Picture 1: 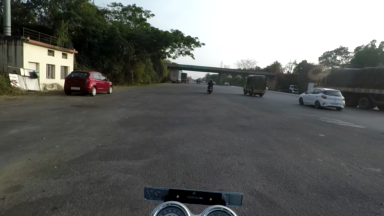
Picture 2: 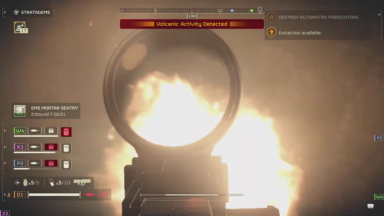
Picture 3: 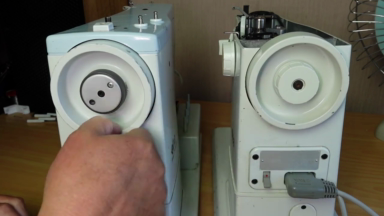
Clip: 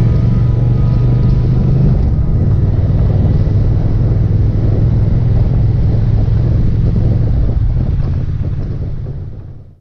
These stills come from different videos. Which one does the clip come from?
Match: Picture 1